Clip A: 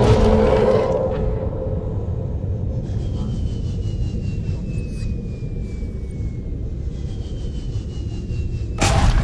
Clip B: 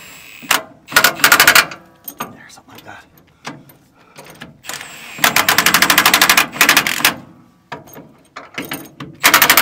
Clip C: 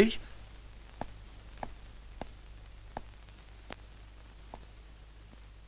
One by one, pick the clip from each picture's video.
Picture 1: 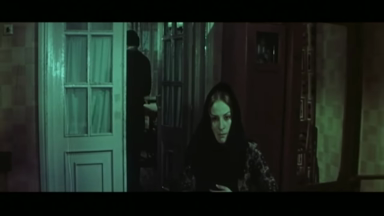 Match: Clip C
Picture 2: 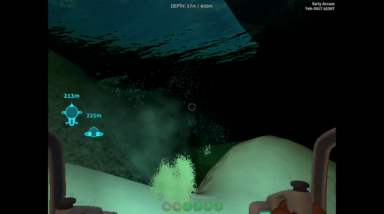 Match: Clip A